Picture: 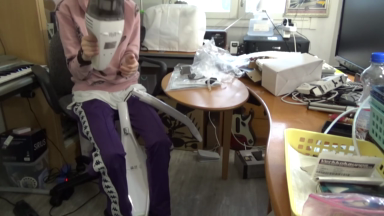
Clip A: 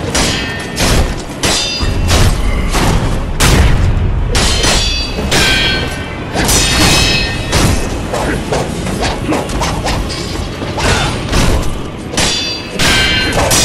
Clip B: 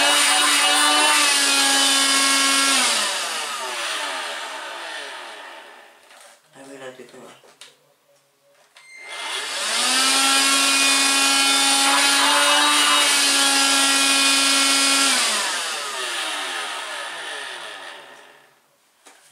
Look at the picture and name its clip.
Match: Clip B